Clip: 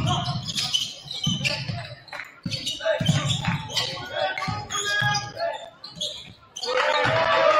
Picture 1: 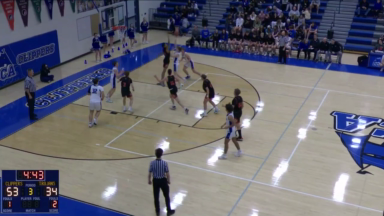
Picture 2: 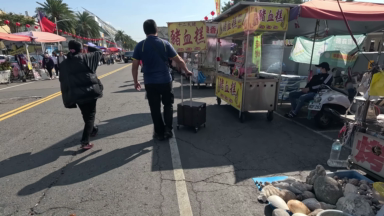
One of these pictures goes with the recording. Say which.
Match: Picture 1